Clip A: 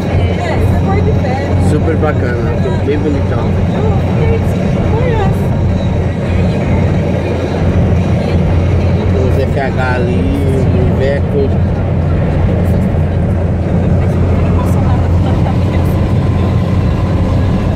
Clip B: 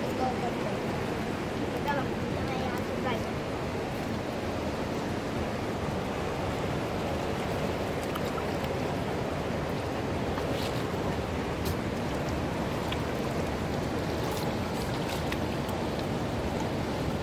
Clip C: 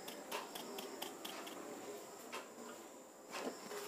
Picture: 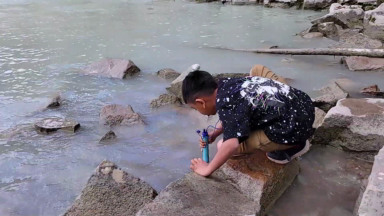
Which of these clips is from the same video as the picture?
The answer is B